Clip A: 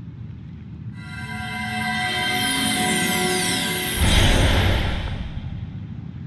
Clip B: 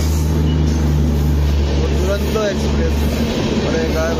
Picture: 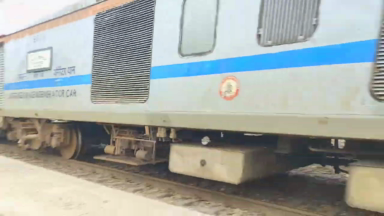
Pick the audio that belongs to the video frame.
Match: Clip B